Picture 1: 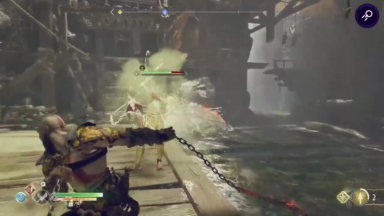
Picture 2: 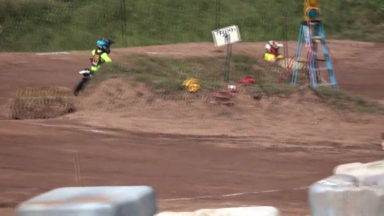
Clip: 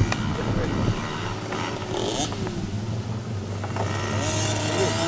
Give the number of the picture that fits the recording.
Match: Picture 2